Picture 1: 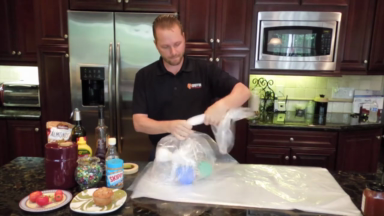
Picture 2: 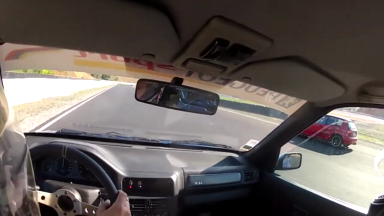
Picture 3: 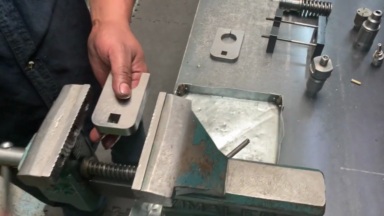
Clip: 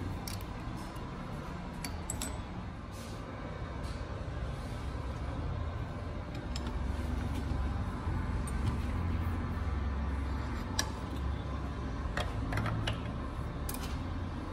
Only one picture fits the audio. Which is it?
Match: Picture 3